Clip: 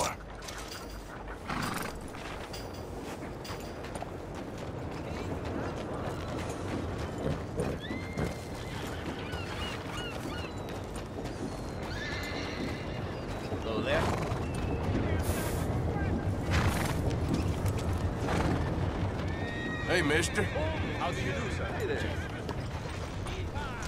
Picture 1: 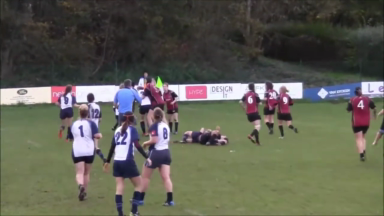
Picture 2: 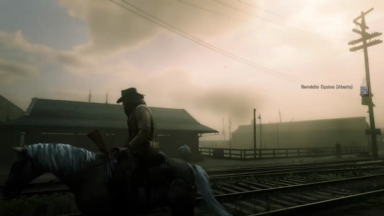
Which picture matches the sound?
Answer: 2